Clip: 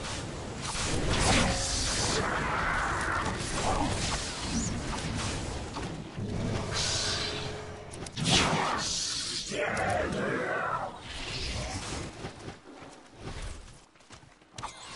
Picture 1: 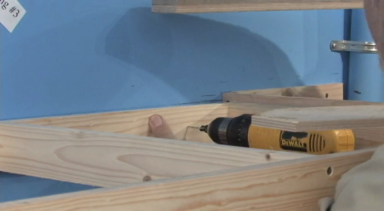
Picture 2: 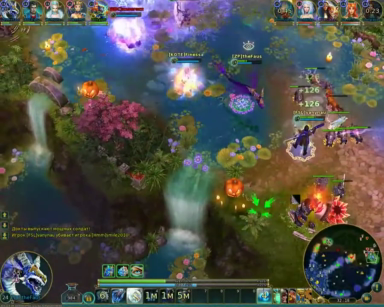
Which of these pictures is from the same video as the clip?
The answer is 2